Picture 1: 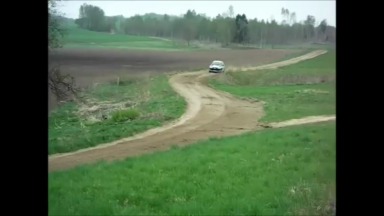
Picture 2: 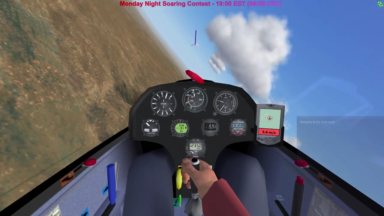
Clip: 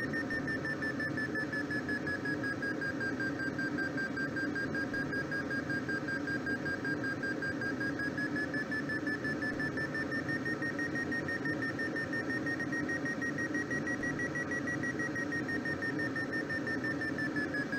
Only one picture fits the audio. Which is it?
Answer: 2